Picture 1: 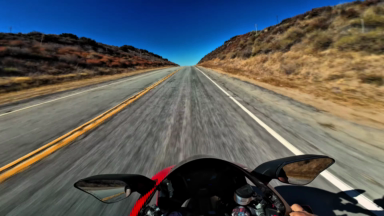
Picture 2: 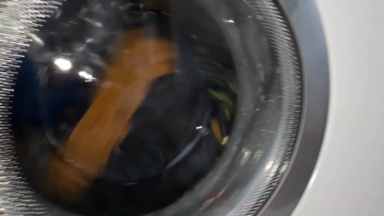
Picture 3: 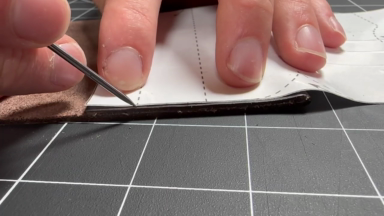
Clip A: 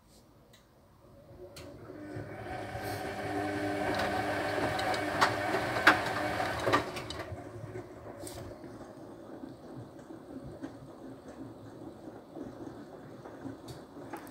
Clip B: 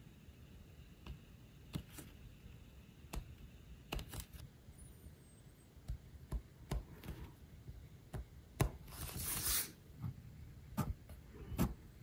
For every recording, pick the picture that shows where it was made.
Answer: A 2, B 3